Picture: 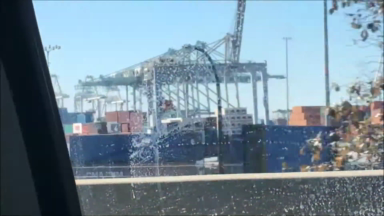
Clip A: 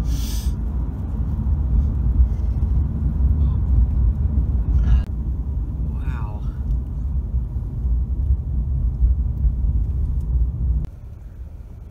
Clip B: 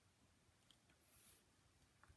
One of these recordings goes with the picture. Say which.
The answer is A